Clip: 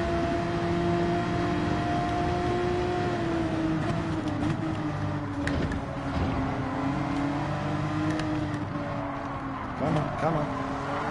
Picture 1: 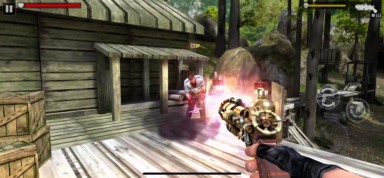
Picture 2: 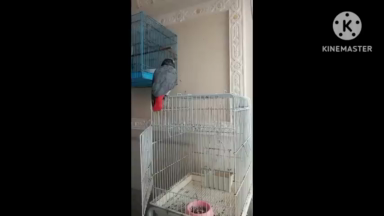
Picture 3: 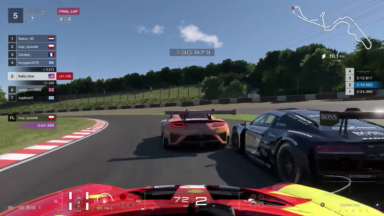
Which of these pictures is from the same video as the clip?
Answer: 3